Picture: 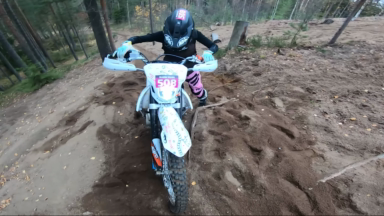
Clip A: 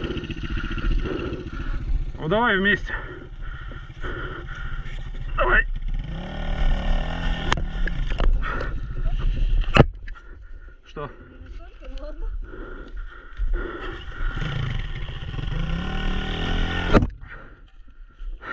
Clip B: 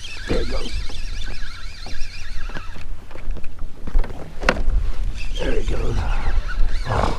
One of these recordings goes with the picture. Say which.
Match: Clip A